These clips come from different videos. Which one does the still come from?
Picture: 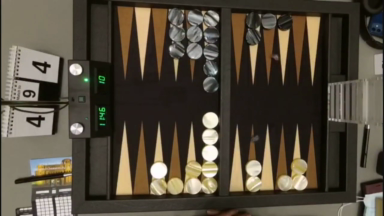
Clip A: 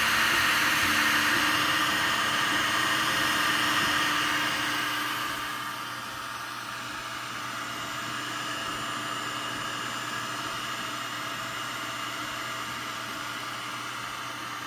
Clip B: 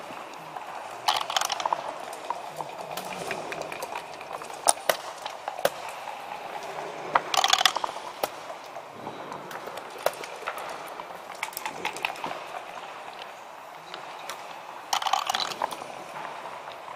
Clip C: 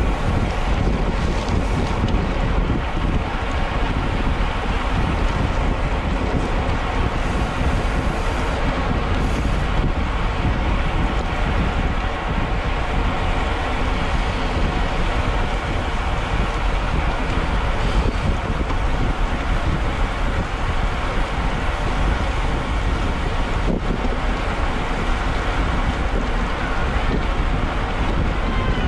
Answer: B